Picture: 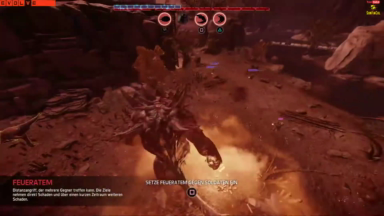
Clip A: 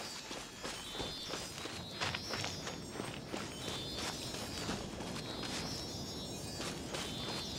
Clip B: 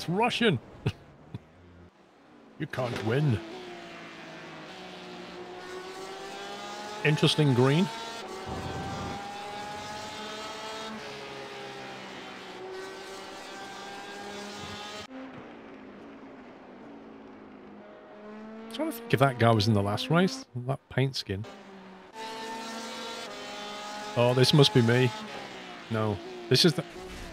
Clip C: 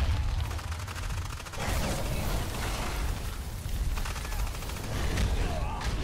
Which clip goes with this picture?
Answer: C